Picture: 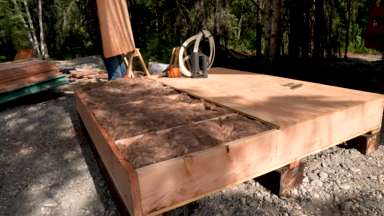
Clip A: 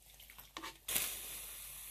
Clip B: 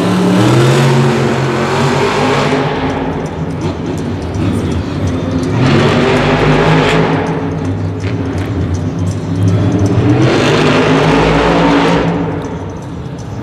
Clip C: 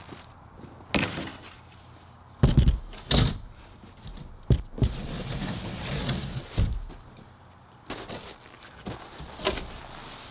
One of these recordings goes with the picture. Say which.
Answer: C